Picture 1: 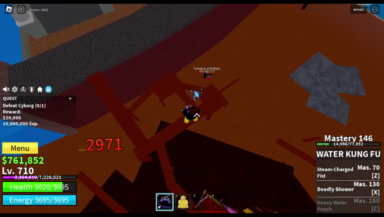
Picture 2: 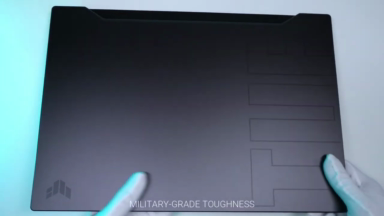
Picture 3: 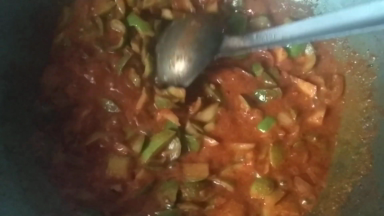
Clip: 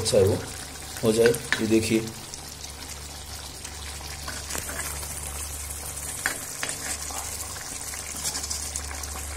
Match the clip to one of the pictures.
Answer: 3